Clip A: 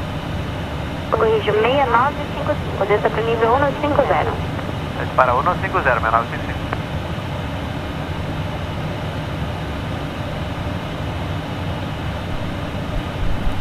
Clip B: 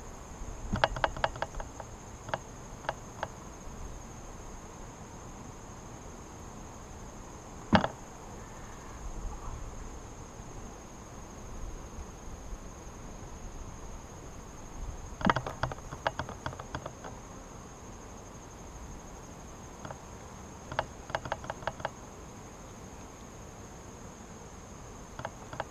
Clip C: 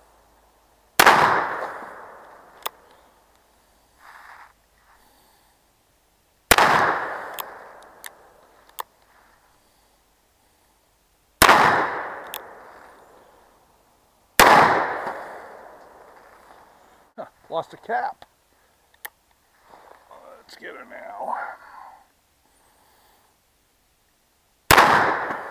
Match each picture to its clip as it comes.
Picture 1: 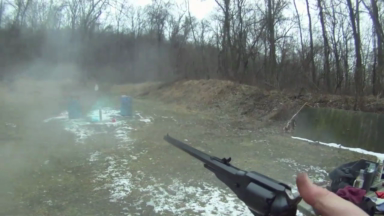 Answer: C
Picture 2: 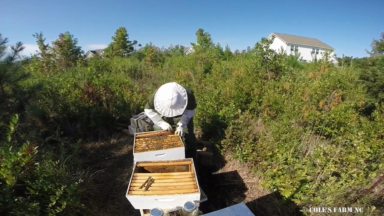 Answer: B